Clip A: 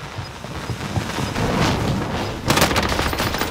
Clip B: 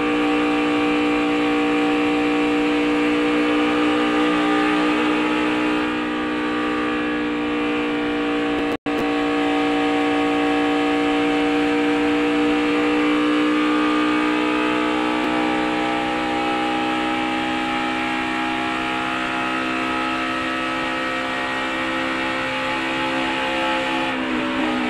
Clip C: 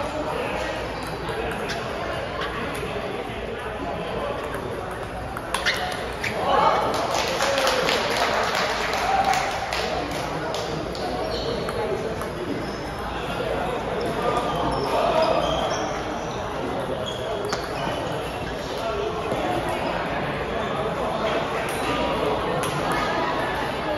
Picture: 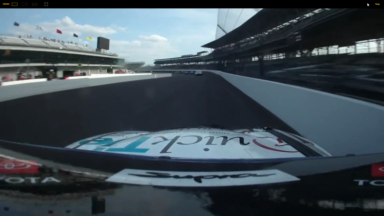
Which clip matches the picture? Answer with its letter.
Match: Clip B